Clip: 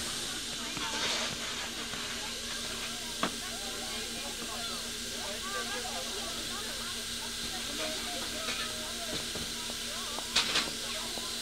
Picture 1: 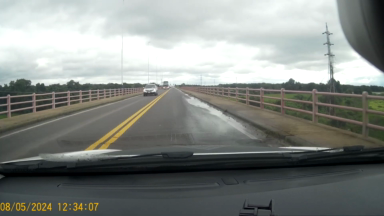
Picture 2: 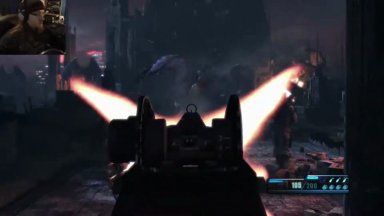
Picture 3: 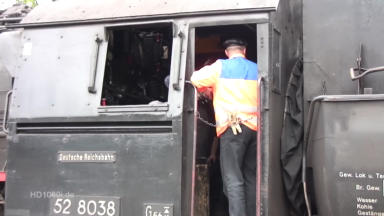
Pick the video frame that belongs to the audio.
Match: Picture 3